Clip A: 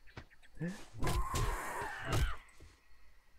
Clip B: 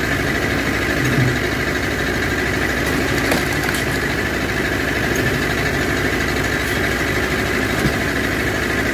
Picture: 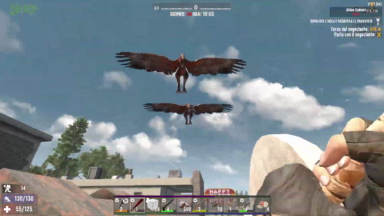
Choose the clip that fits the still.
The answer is A